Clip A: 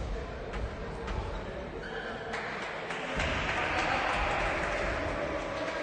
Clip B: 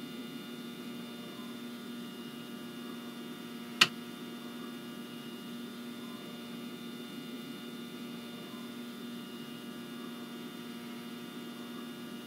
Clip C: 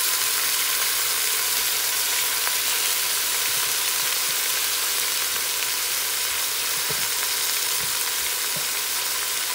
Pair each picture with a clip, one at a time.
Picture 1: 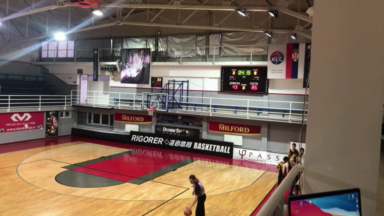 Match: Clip A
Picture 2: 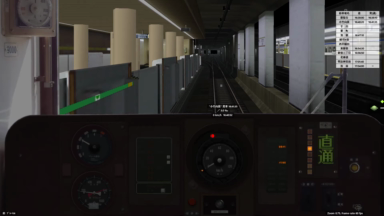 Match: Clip B